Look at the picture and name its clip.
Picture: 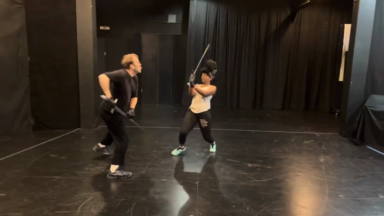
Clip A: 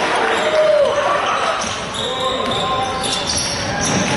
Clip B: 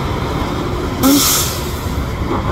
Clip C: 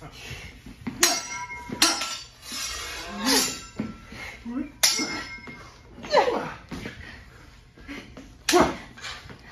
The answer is C